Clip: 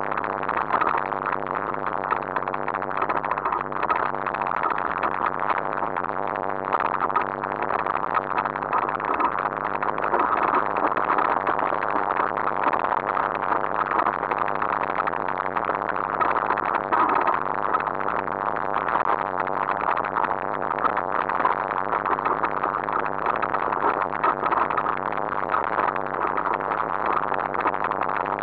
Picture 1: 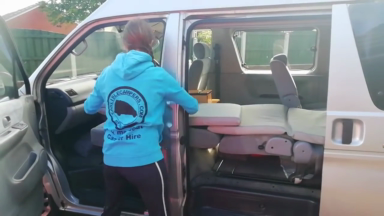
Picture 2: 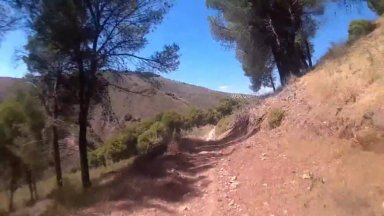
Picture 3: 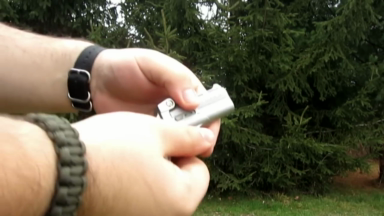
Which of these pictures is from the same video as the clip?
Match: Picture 2